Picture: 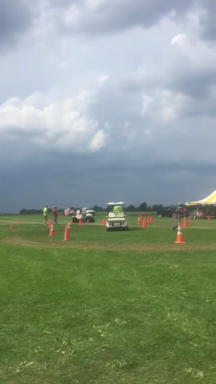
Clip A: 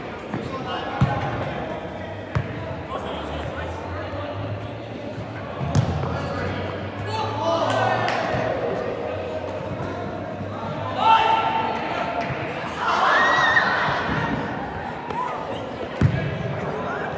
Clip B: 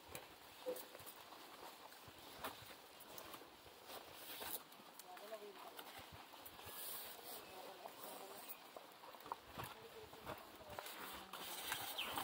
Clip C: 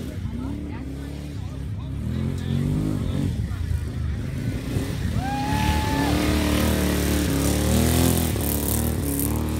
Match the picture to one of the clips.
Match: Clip C